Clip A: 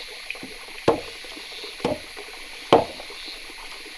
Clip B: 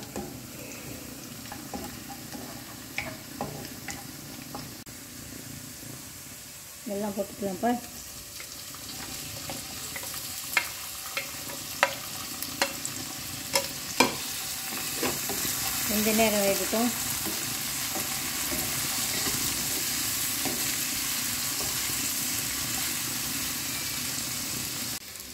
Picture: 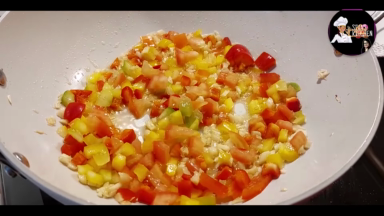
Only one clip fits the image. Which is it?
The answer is B